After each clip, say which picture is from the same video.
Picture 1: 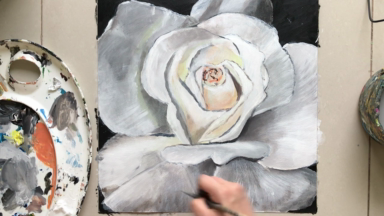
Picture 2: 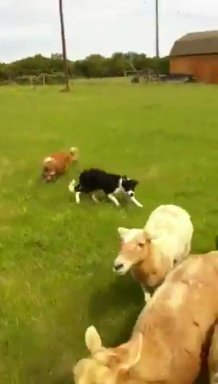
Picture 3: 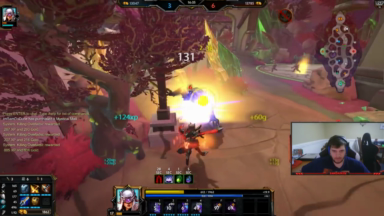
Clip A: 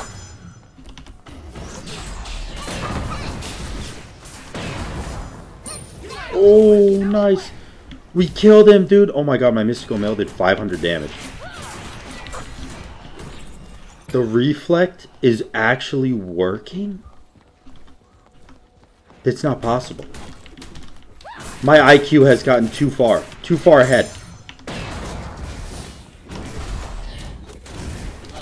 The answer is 3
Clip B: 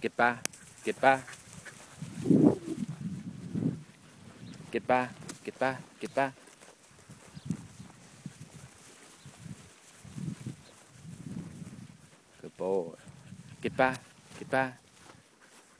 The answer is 2